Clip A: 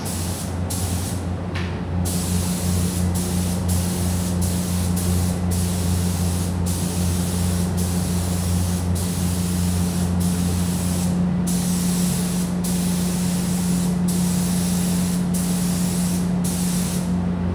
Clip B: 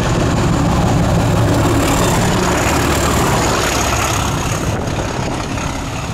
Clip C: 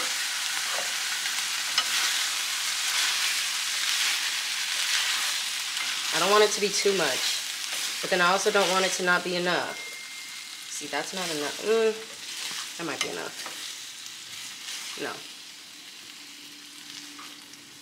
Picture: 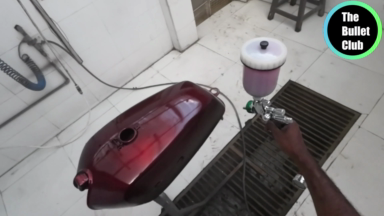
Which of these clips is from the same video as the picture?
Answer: A